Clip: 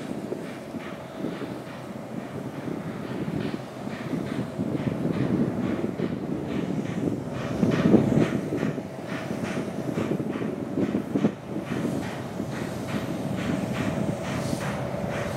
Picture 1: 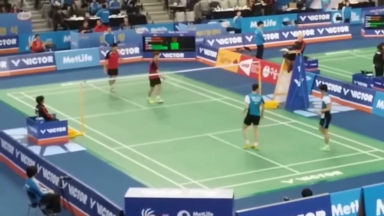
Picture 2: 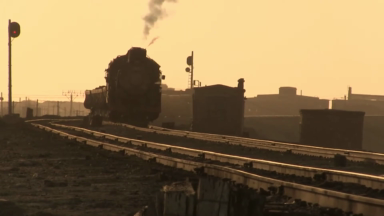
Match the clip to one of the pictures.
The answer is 2